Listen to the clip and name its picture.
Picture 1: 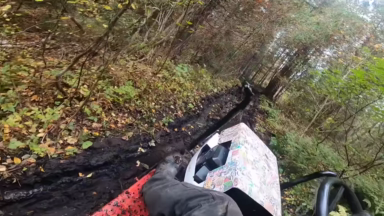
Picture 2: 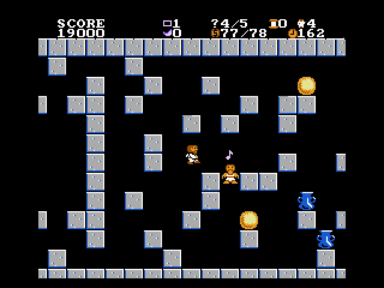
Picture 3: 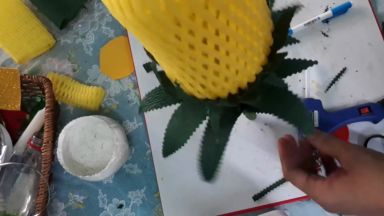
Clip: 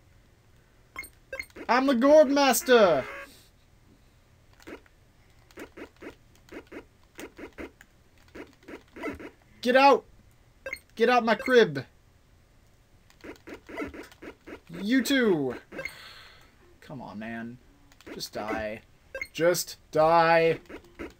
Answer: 2